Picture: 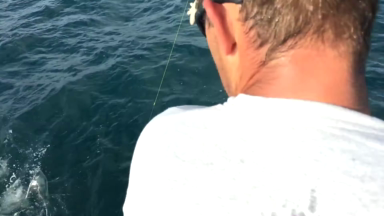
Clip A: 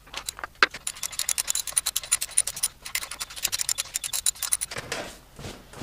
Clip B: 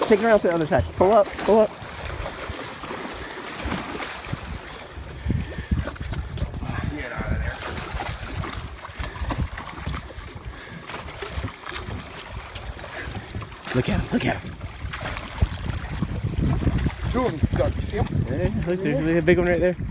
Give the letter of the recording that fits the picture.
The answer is B